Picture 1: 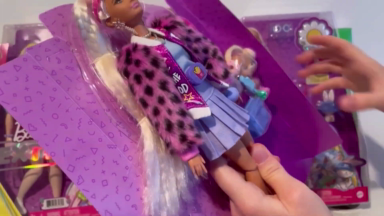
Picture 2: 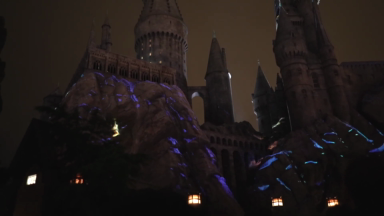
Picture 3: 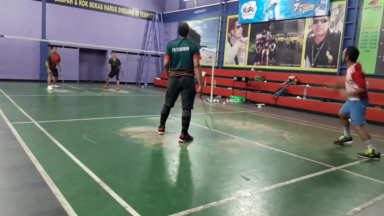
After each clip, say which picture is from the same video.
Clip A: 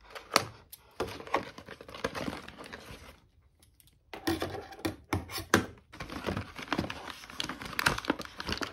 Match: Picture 1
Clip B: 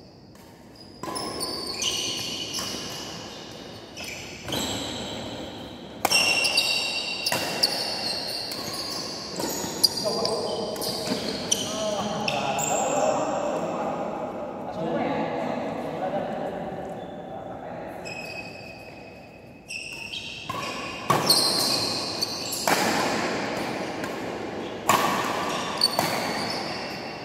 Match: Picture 3